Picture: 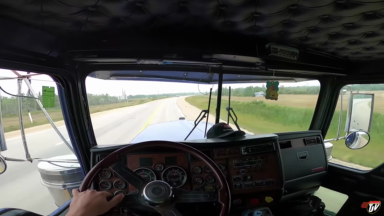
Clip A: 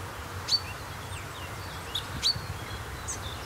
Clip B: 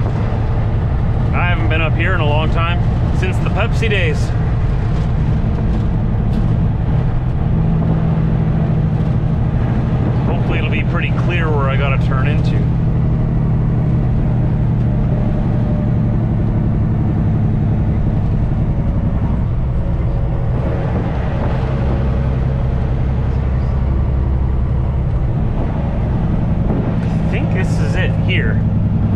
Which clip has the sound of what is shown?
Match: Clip B